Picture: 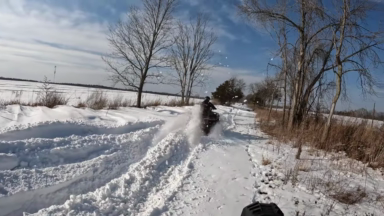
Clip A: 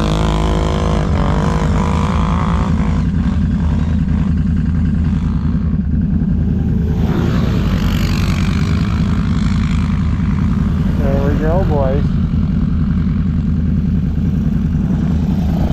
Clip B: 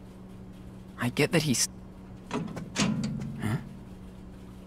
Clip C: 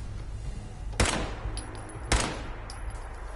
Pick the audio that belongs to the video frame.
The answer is A